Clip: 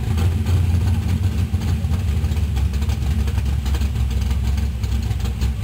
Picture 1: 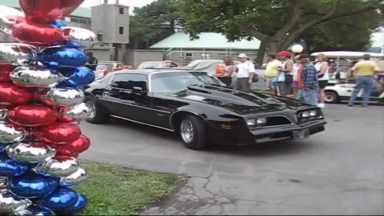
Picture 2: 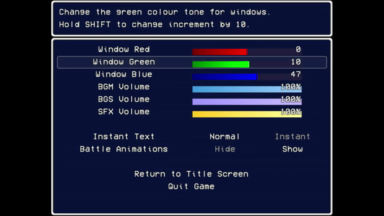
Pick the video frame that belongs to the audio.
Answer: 1